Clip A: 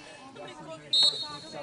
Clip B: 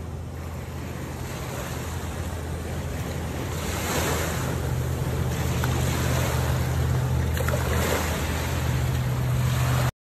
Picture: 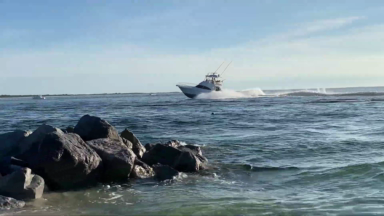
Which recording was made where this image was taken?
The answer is B